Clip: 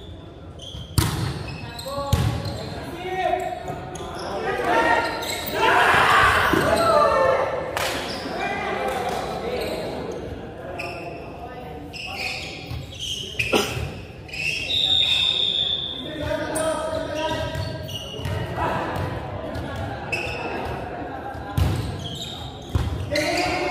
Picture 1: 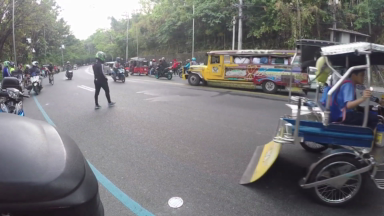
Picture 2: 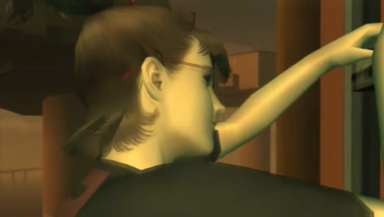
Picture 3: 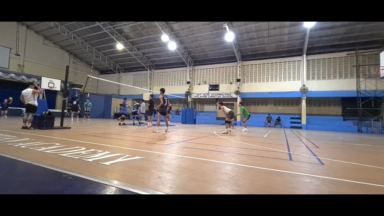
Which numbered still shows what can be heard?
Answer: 3